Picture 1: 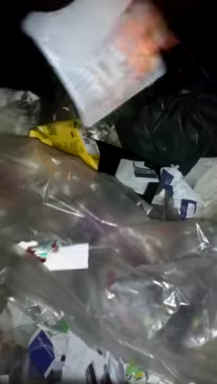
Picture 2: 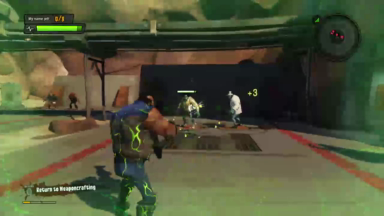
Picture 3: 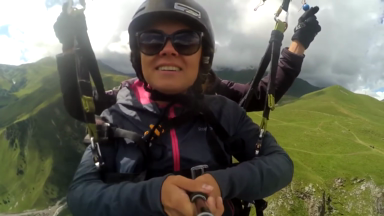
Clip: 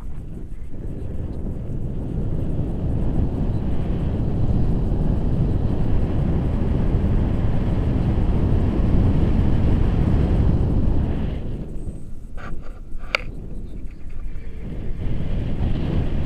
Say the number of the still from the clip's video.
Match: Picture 3